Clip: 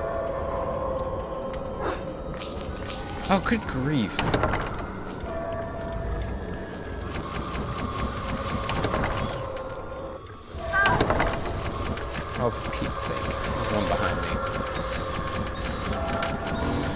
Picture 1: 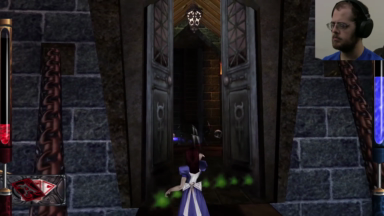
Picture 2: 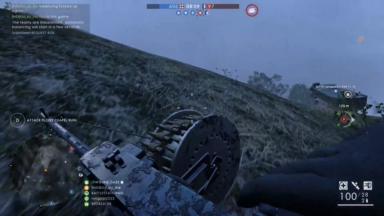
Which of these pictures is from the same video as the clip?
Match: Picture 1